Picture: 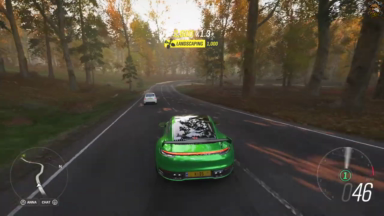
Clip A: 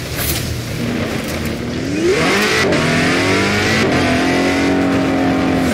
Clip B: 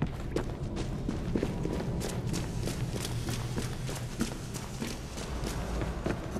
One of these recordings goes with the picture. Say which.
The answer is A